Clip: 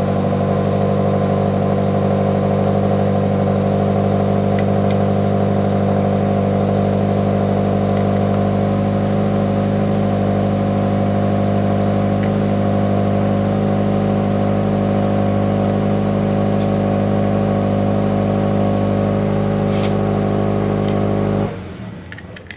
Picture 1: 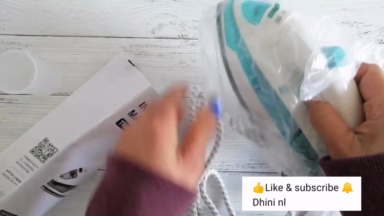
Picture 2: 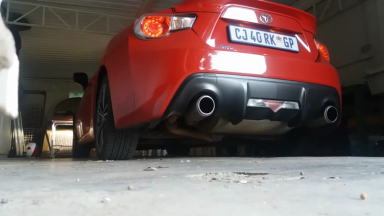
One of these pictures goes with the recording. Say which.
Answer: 2